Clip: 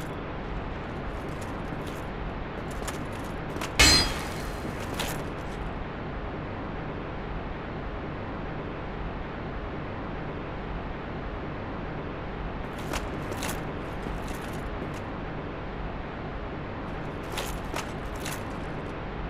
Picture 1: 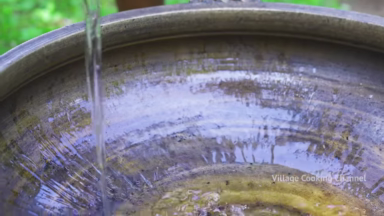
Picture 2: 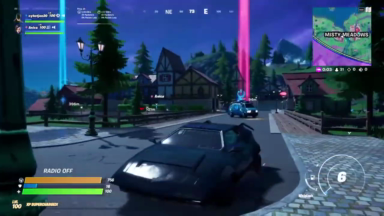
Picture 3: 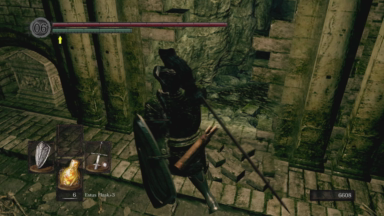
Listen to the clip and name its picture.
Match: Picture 3